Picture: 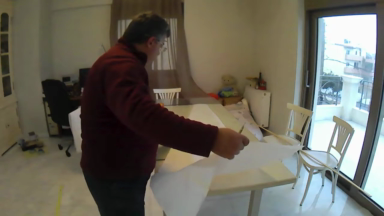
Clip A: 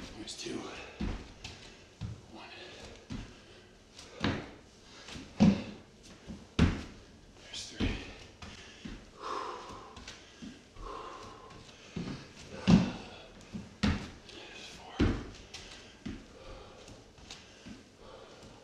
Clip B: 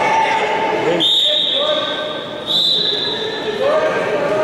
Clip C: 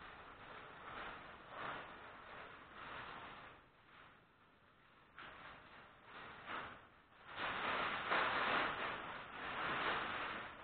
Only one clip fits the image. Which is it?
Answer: C